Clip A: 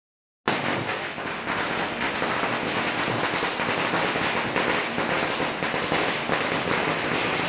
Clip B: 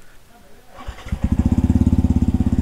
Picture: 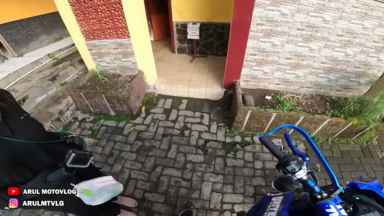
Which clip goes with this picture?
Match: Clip B